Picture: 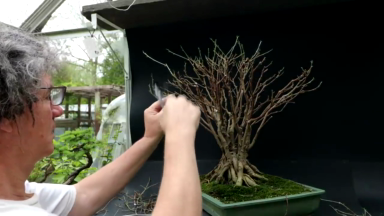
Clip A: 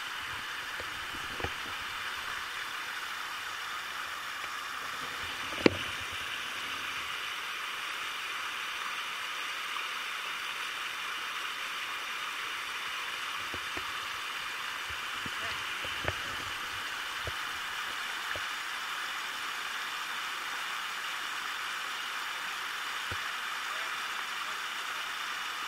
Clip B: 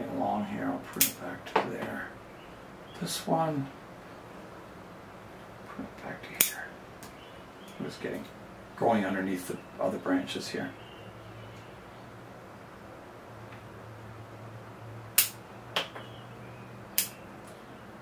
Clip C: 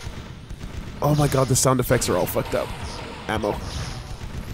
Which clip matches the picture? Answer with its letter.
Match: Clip B